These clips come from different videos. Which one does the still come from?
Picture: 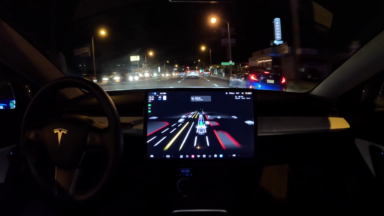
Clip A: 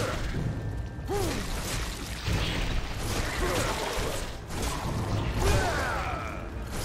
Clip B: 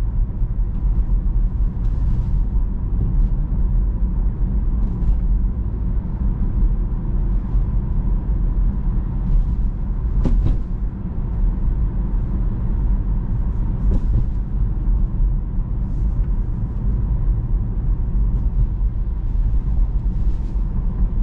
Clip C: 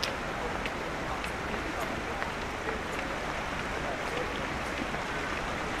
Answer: B